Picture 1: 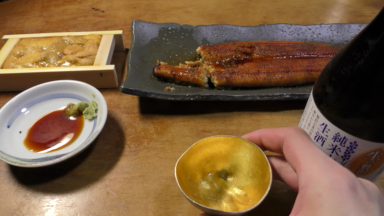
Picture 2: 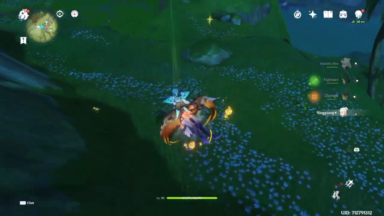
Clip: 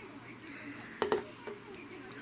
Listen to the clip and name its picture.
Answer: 1